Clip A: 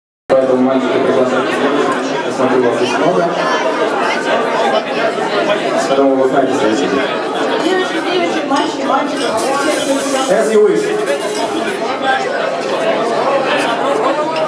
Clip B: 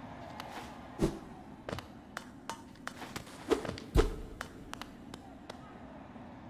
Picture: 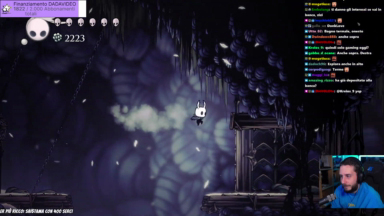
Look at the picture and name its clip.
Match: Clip B